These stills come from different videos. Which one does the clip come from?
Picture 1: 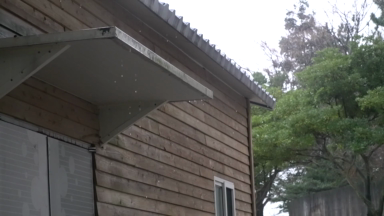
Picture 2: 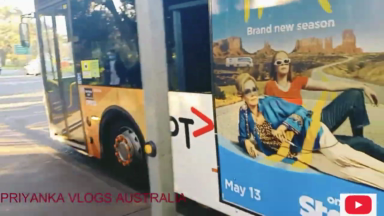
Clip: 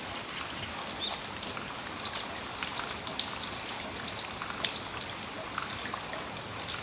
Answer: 1